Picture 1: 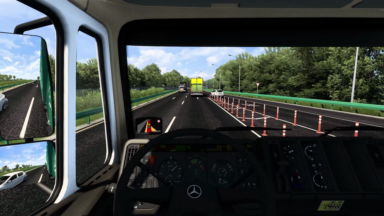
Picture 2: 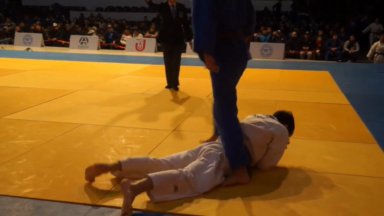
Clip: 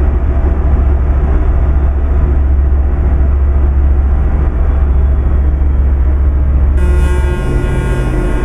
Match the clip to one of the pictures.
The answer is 1